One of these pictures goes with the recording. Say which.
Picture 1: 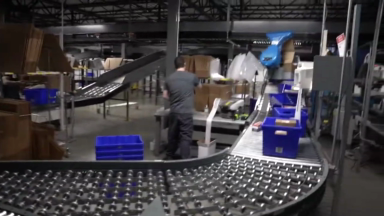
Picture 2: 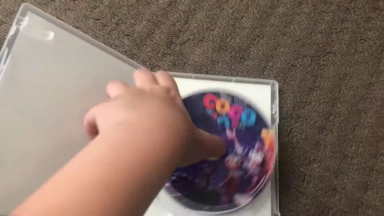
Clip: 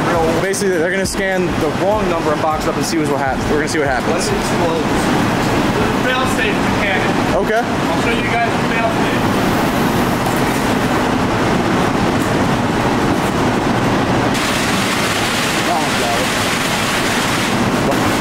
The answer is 1